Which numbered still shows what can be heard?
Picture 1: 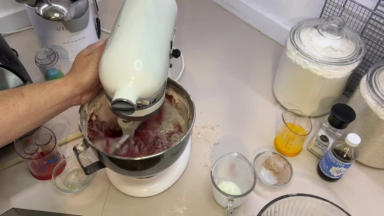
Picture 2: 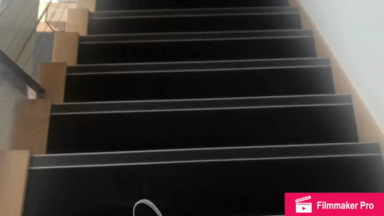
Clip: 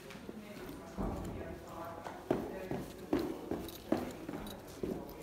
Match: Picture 2